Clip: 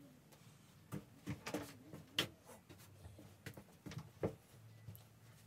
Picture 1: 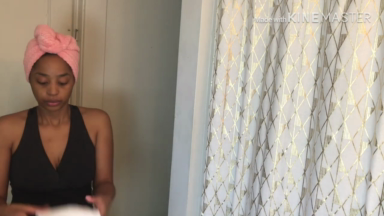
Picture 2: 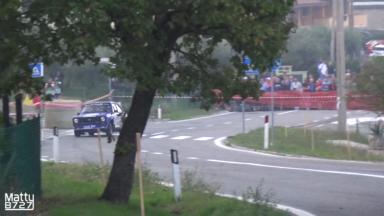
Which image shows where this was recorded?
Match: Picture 1